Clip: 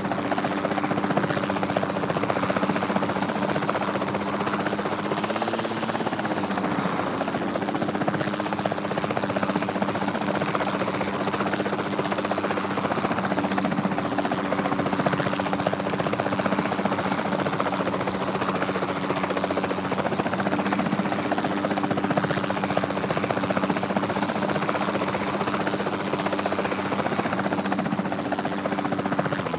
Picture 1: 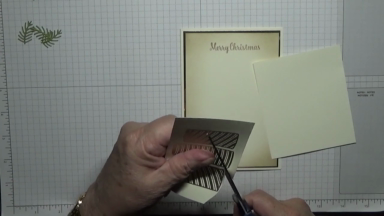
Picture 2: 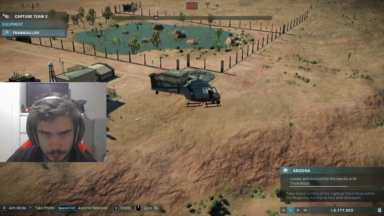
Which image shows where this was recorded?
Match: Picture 2